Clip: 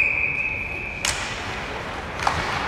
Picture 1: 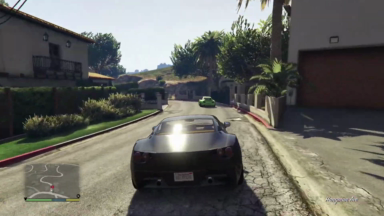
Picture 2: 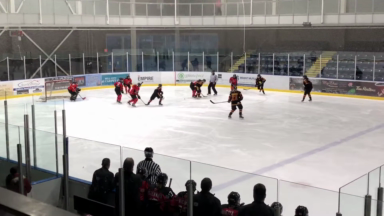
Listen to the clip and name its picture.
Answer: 2